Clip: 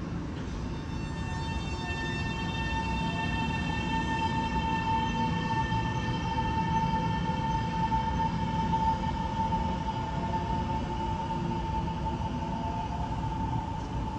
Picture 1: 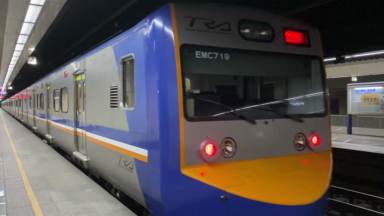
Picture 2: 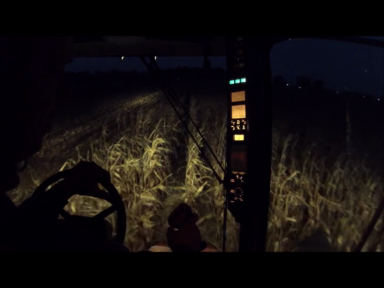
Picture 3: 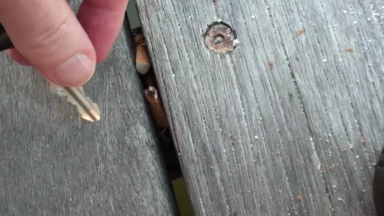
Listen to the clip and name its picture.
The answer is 1